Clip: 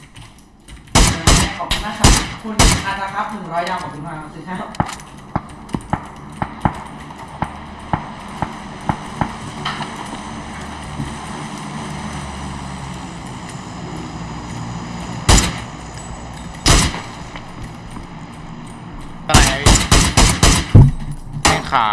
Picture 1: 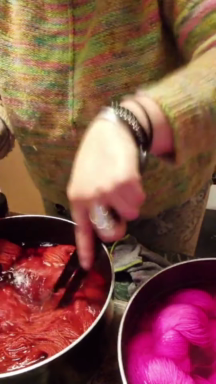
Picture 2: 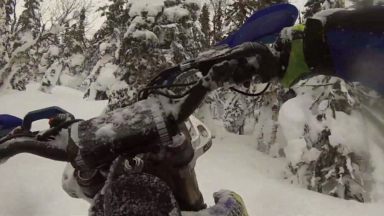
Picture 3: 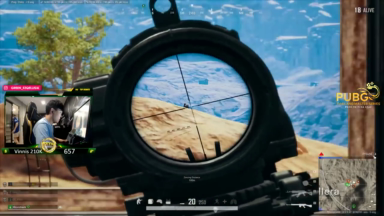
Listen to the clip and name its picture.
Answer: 3